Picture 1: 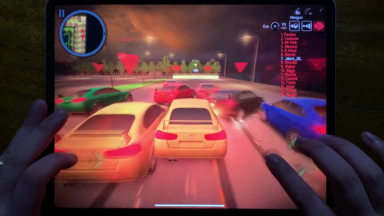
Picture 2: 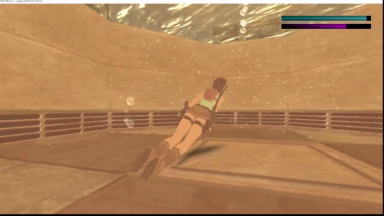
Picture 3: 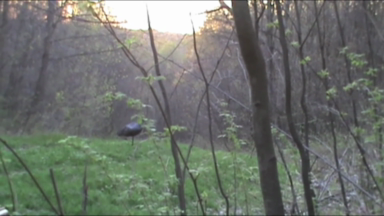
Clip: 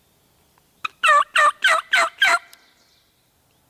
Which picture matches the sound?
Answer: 3